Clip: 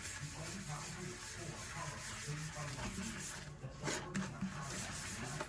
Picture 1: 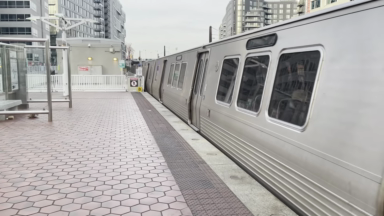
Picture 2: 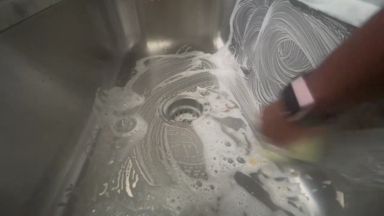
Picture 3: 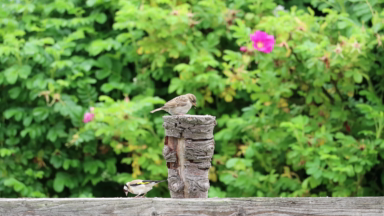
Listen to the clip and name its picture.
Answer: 2